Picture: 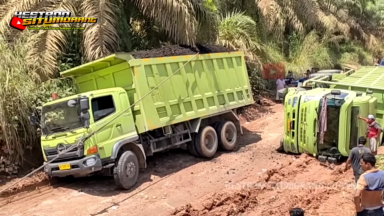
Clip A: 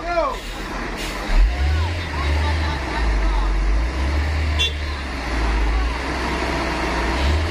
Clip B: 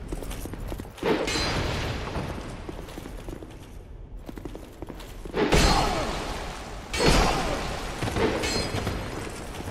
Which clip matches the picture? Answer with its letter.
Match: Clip A